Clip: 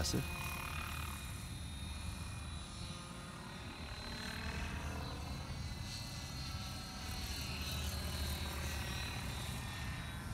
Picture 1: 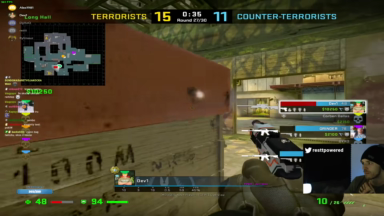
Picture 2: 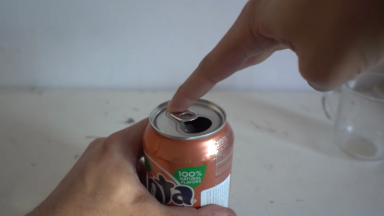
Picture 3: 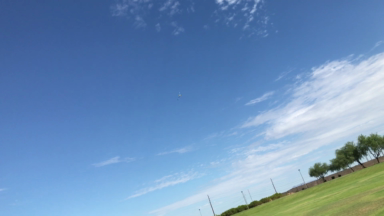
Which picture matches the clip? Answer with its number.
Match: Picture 3